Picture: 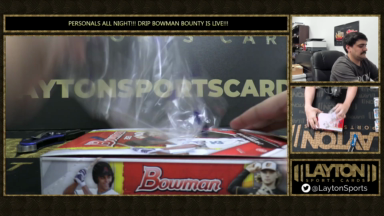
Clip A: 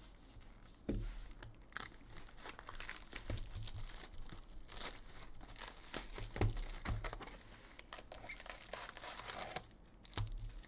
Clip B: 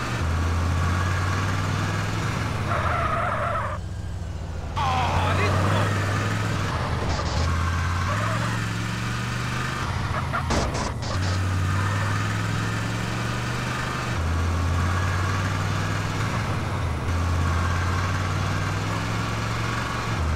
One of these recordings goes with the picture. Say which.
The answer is A